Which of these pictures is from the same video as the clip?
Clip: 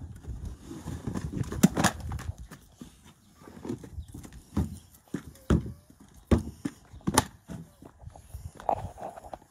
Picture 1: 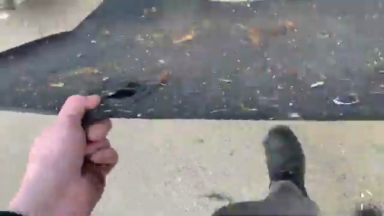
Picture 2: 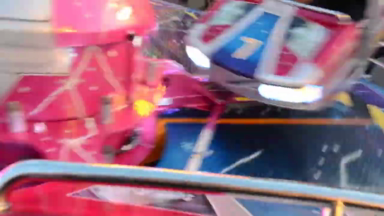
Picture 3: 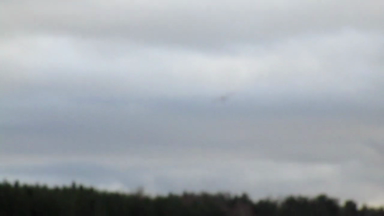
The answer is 1